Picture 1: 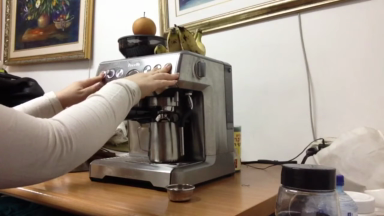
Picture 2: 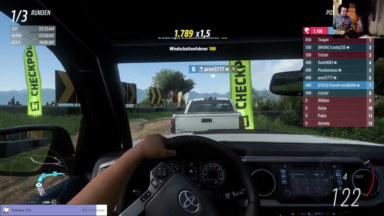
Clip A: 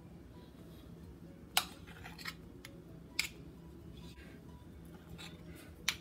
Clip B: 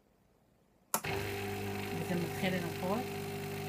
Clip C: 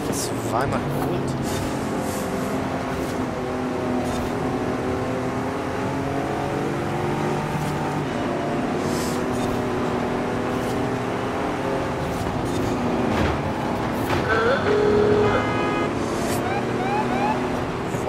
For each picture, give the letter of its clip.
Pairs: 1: B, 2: C